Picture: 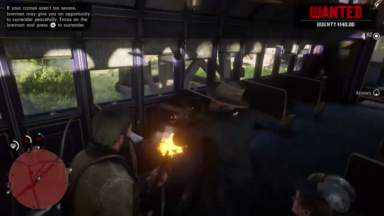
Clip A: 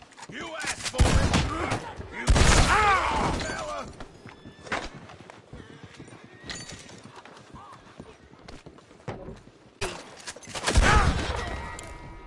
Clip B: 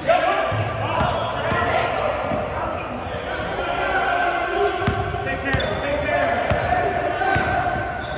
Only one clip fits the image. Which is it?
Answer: A